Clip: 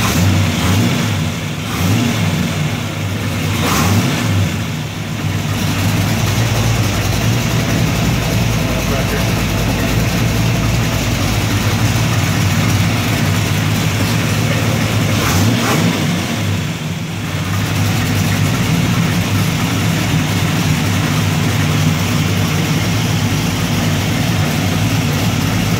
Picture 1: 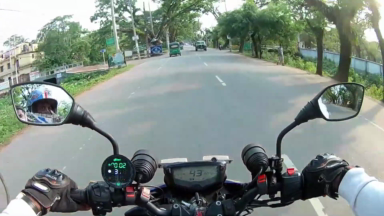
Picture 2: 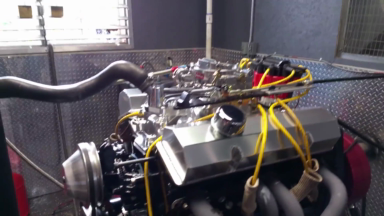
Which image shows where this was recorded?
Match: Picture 2